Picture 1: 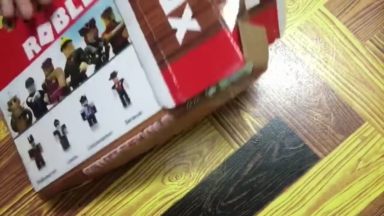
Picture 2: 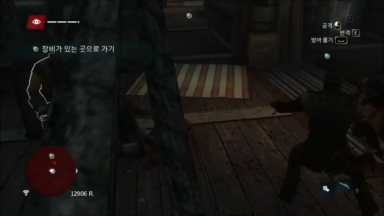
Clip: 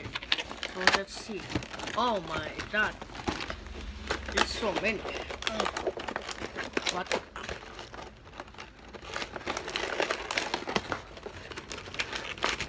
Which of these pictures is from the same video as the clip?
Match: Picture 1